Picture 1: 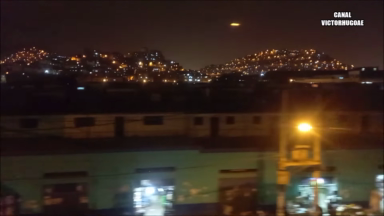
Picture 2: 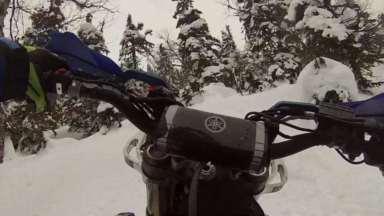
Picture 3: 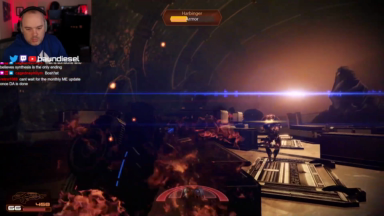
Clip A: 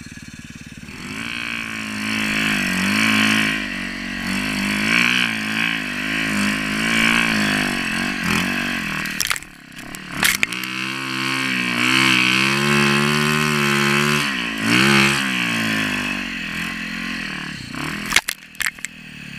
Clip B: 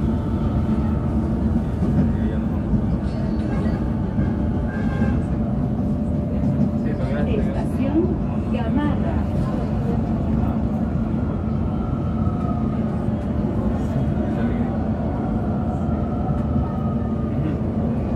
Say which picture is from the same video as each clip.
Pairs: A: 2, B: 1